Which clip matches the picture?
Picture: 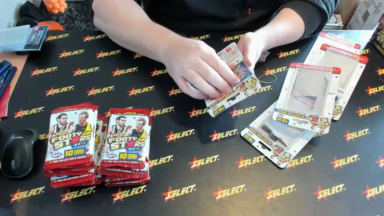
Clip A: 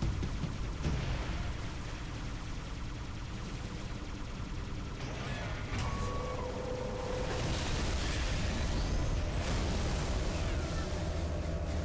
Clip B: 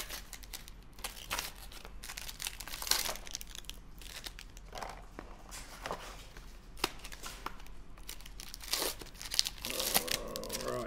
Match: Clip B